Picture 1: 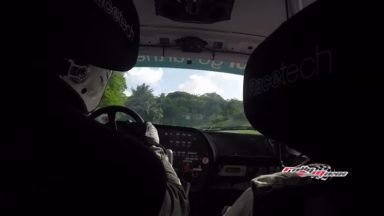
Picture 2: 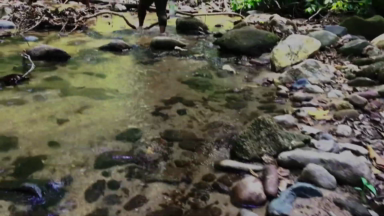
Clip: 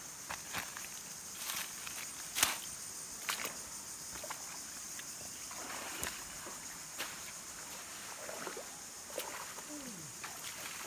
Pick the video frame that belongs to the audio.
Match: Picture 2